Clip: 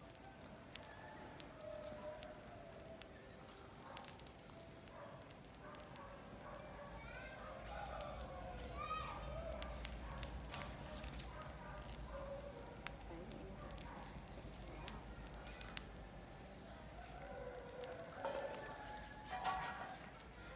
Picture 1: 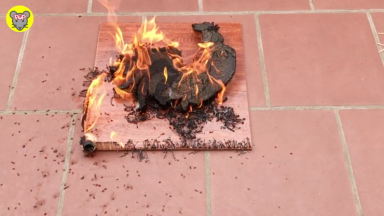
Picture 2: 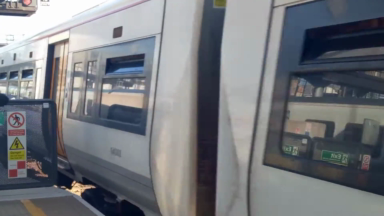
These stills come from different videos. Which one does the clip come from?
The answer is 1